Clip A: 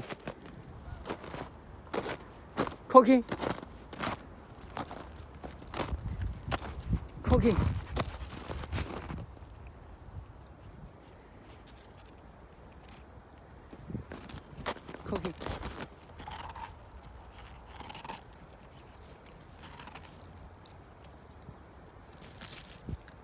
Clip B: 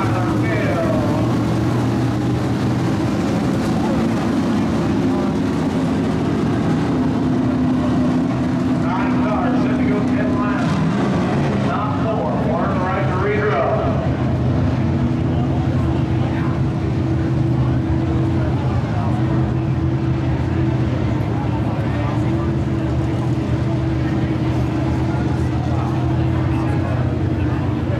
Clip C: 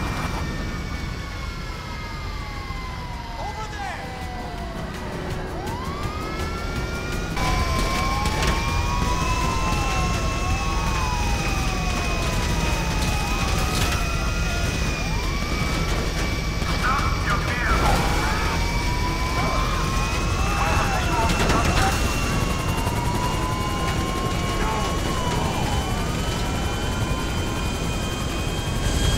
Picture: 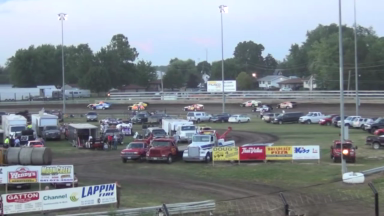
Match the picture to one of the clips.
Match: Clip B